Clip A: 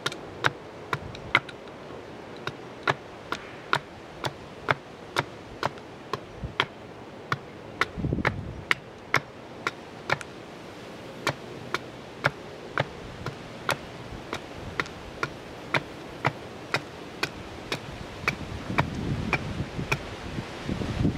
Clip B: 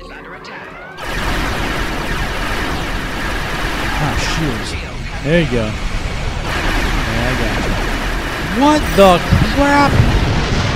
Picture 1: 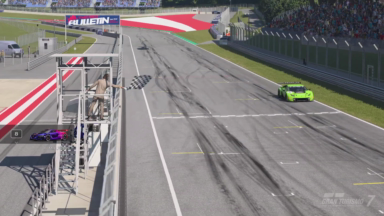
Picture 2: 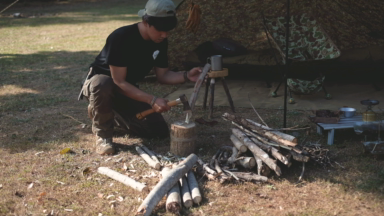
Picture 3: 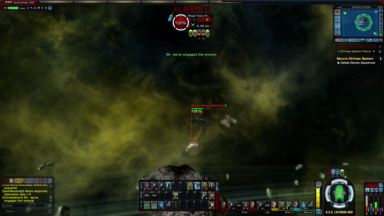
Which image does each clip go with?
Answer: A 2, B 3